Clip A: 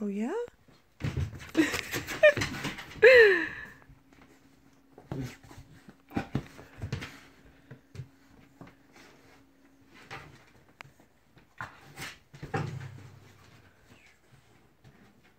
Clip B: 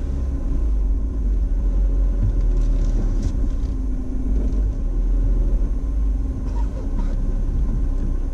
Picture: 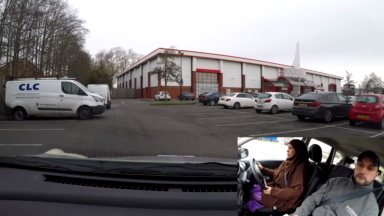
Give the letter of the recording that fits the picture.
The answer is B